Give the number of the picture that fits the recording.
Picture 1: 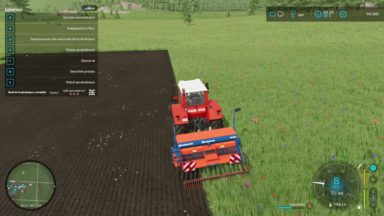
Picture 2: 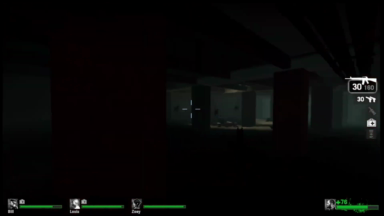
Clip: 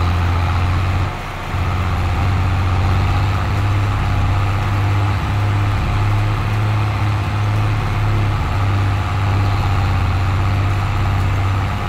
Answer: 1